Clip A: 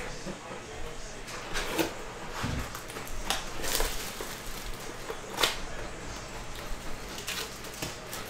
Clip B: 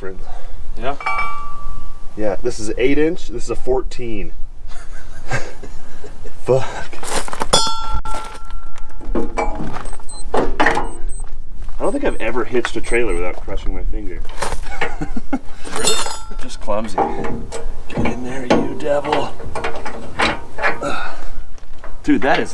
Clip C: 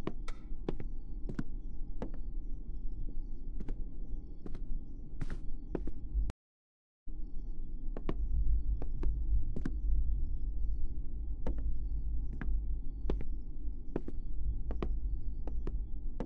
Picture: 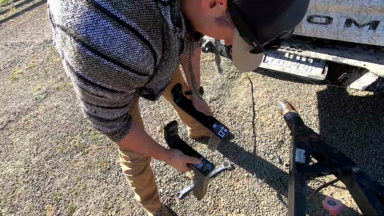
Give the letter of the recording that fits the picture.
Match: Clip B